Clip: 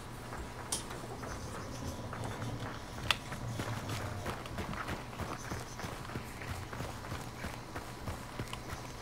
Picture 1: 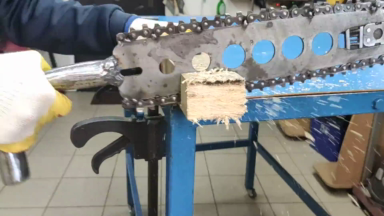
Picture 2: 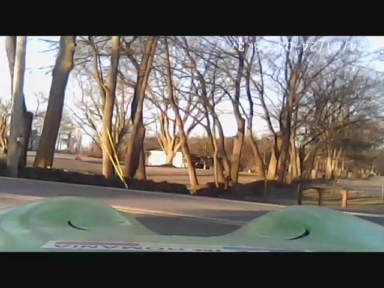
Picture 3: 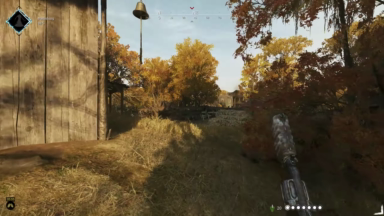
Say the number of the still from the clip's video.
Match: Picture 3